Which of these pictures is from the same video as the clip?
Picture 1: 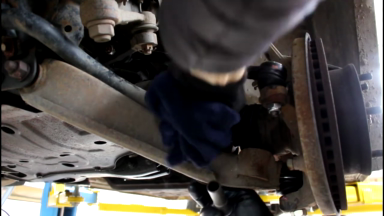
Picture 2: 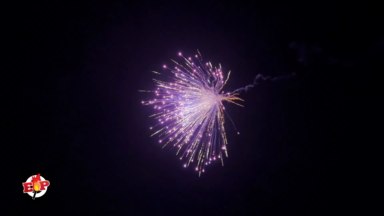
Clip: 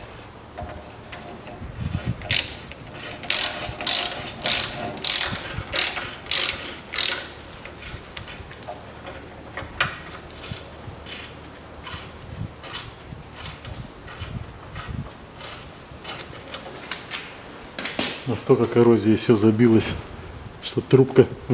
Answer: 1